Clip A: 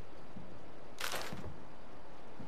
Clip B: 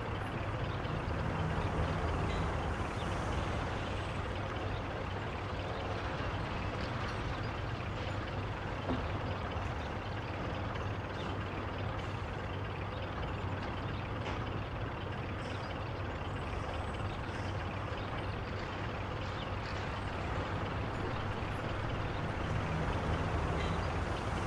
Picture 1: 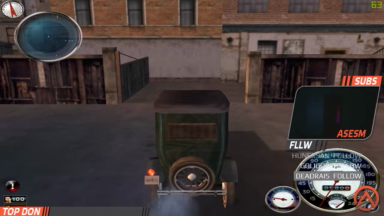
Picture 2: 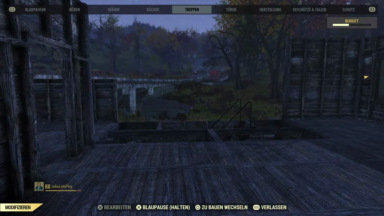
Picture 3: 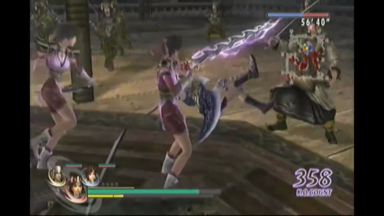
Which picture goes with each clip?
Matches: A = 2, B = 1